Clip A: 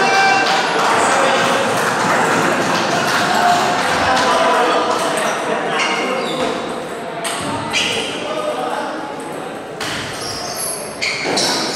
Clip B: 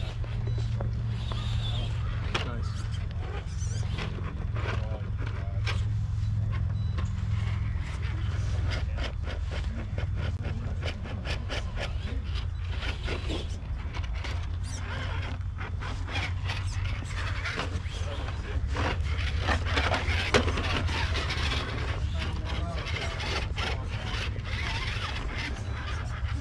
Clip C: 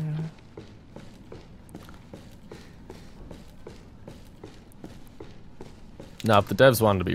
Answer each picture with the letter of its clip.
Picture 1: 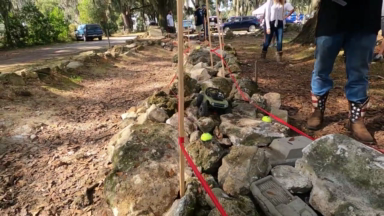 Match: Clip B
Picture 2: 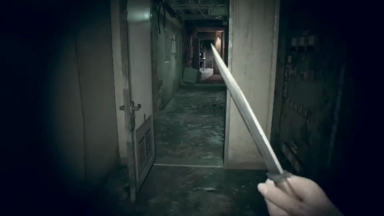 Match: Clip C